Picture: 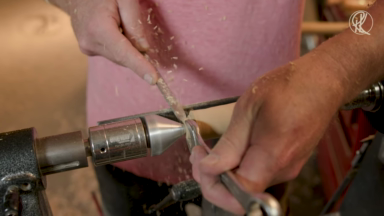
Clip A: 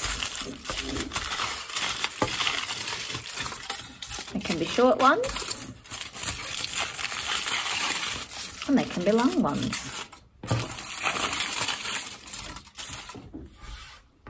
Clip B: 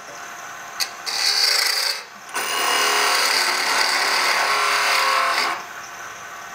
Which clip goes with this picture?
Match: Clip B